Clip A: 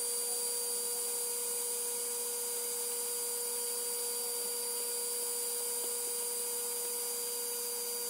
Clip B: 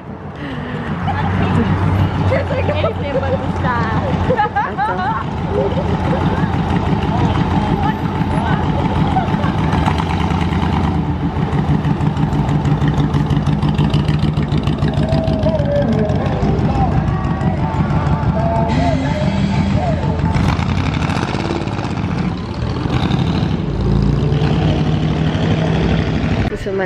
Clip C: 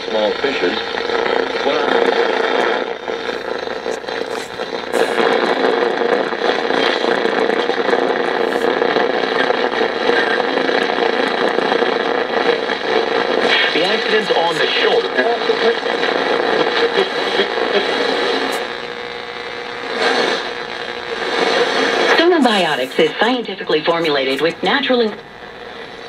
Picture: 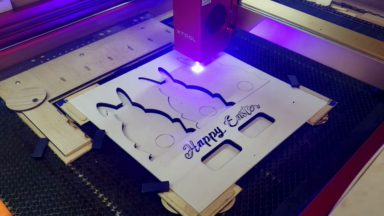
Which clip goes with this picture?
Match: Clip A